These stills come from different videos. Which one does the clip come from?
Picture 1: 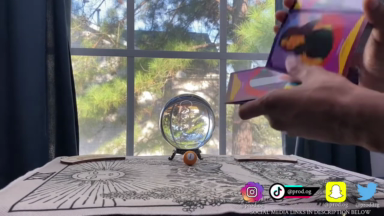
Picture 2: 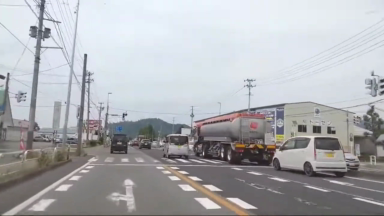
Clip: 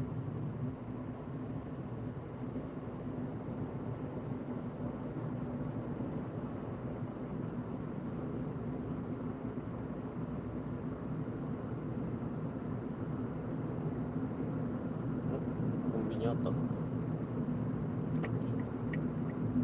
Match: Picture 2